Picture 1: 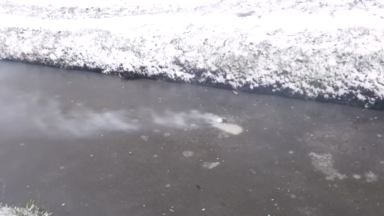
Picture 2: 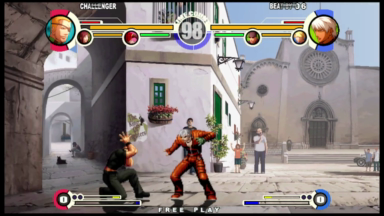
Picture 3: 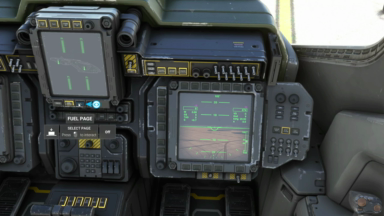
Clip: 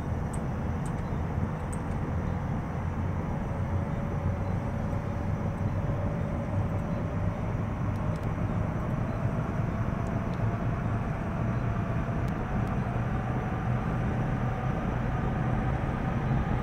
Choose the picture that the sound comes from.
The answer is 3